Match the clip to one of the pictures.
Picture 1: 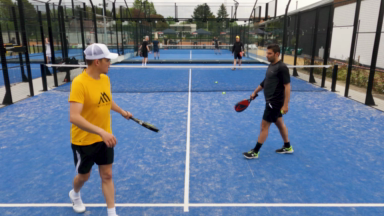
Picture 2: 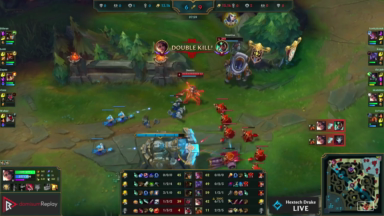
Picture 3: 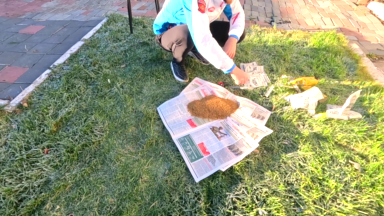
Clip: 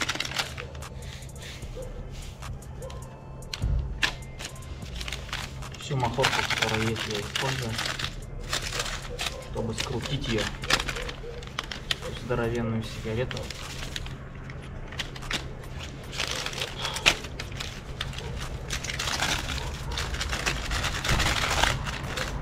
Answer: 3